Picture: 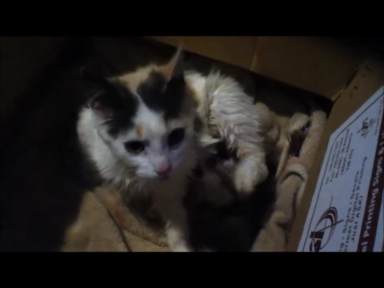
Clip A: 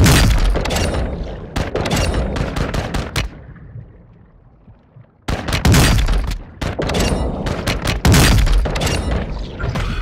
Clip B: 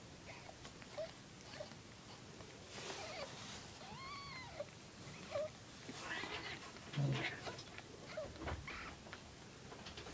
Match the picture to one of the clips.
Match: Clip B